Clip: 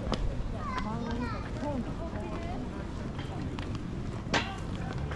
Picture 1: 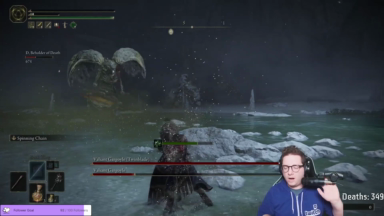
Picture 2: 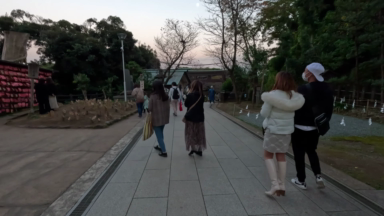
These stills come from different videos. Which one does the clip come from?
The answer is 2